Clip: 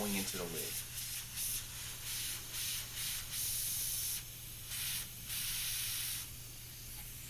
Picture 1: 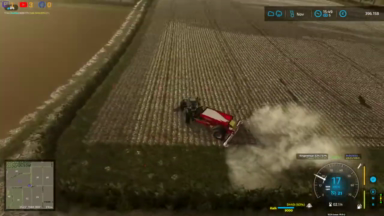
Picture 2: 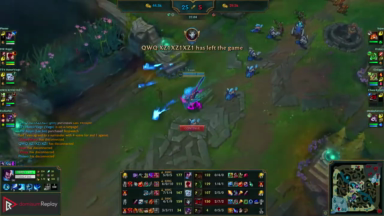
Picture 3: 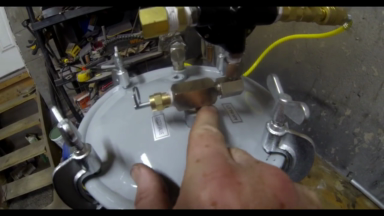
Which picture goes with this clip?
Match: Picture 3